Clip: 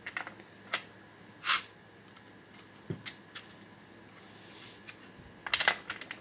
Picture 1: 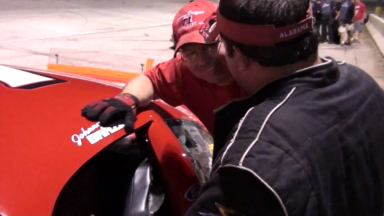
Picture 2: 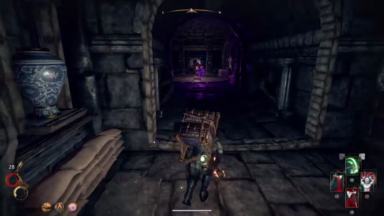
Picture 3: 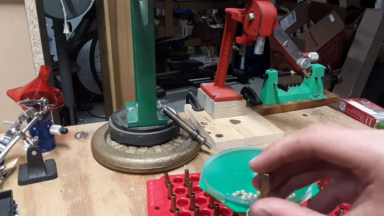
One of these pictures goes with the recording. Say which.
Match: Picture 3